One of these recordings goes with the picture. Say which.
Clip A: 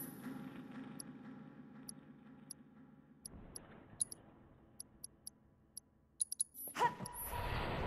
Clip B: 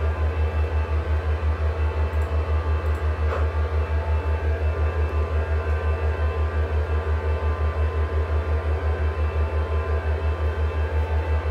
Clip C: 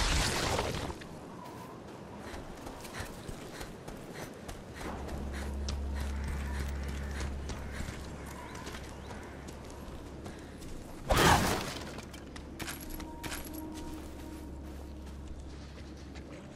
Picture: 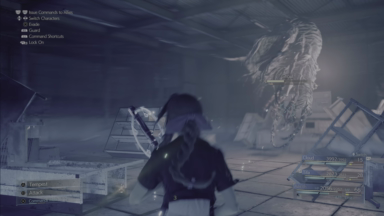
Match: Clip A